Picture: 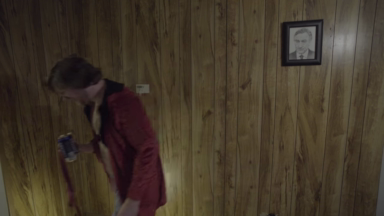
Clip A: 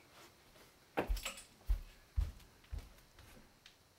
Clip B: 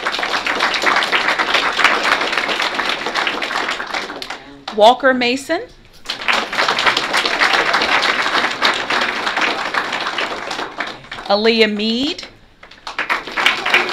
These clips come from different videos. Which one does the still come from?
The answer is A